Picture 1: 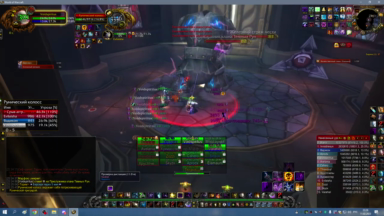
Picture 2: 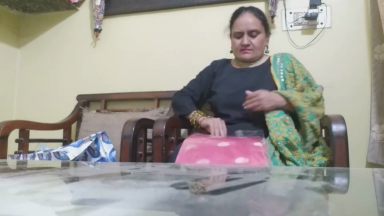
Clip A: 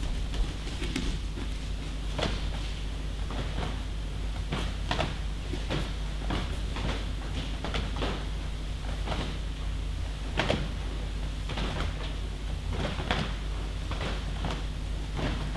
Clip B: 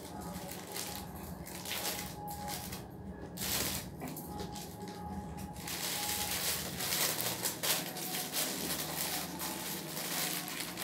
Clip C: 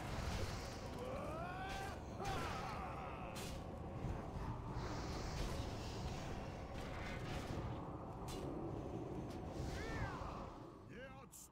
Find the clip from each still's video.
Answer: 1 C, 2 B